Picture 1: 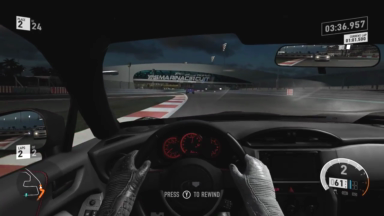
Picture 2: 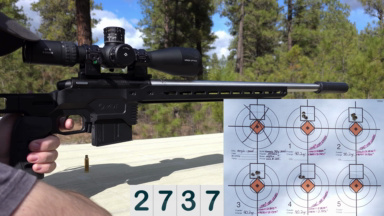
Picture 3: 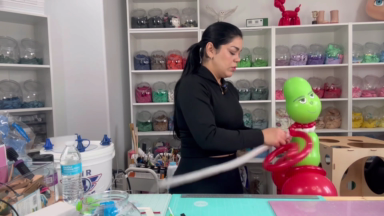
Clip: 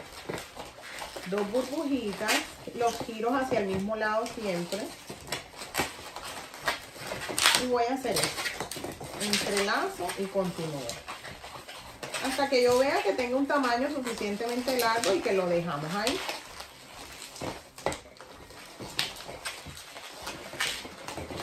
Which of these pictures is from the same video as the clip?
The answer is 3